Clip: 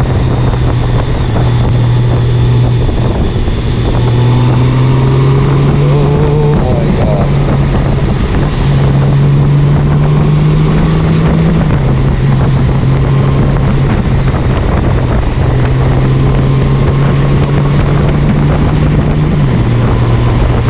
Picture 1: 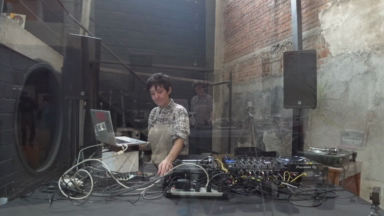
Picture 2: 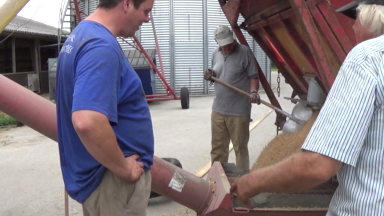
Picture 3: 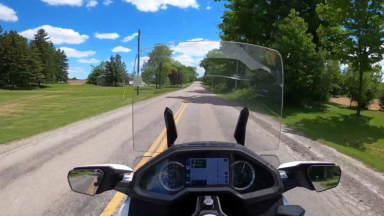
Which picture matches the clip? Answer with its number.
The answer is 3